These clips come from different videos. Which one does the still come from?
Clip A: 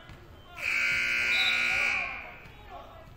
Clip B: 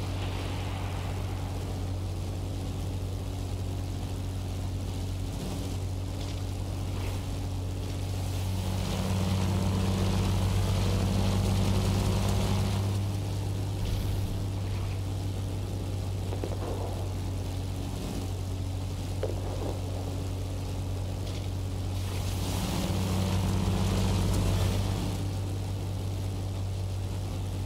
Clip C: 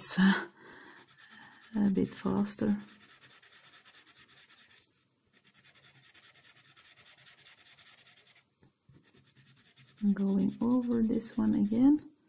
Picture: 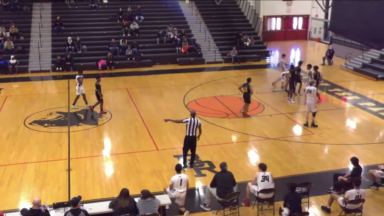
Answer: A